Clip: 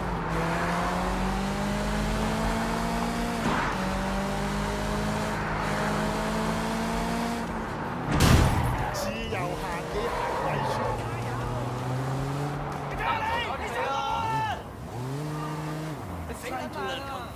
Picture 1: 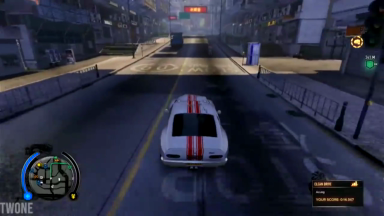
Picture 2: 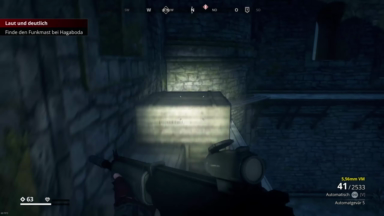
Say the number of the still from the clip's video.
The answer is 1